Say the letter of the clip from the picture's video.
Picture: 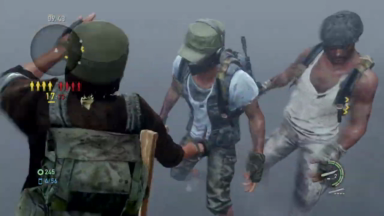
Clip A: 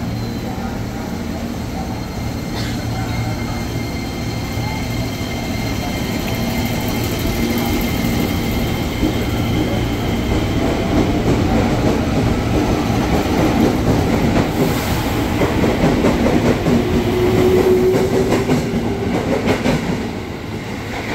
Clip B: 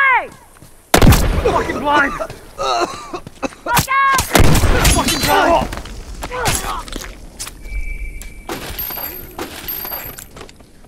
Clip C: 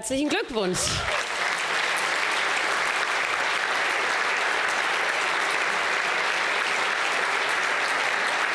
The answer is B